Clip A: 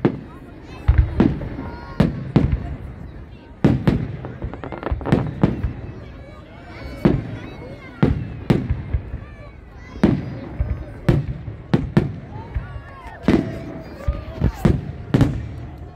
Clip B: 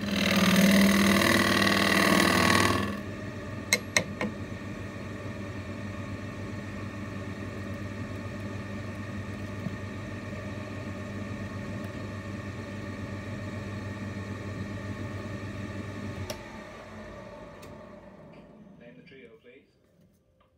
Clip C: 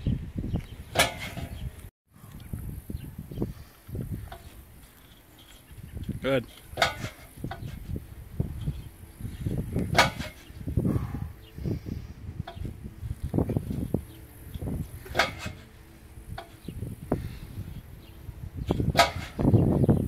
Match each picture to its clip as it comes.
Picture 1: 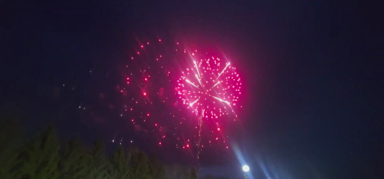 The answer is A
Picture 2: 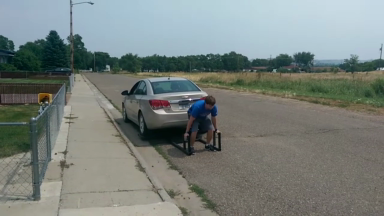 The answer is C